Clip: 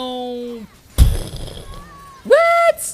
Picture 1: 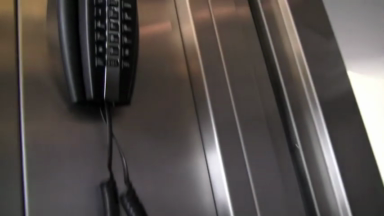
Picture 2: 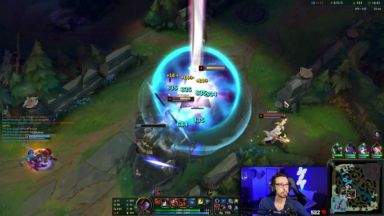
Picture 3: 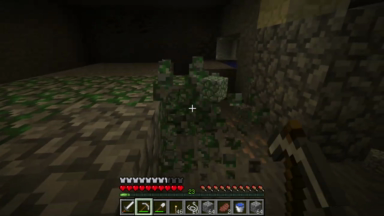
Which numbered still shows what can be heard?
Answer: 2